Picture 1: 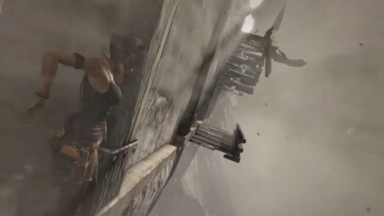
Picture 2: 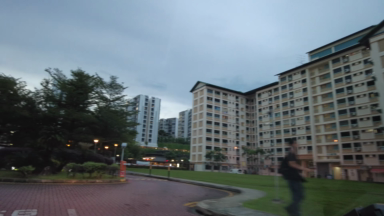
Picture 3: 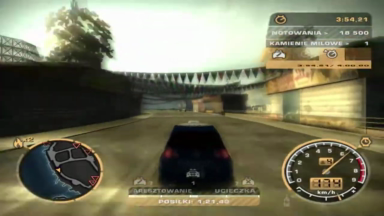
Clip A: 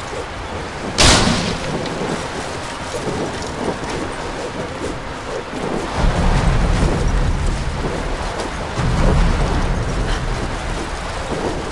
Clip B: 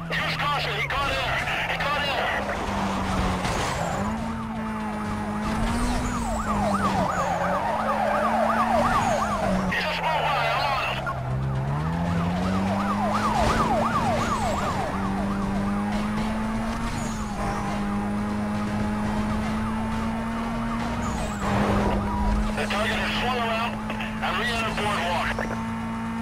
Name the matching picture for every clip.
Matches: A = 1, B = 3